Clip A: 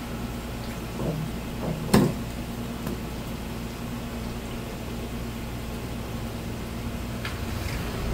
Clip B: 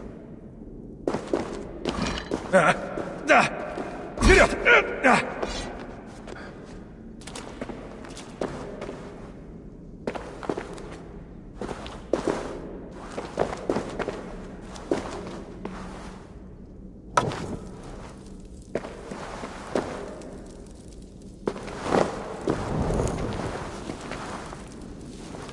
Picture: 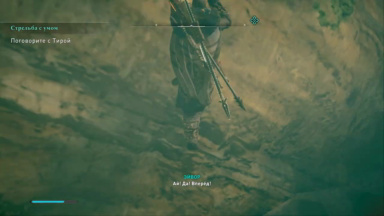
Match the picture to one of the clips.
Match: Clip B